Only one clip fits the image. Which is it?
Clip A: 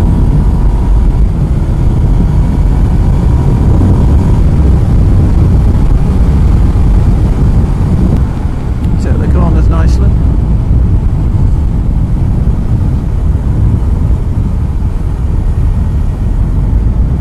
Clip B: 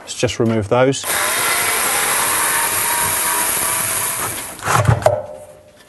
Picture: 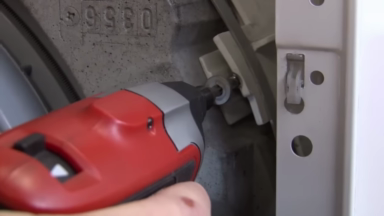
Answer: B